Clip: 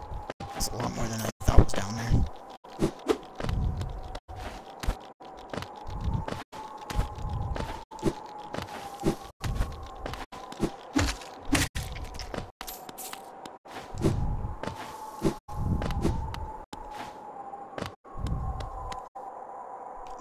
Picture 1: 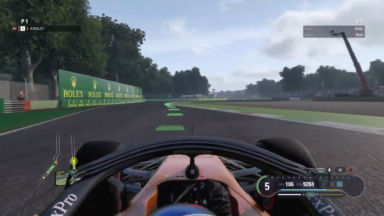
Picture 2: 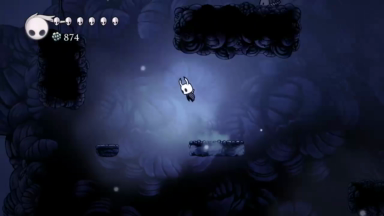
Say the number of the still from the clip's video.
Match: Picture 2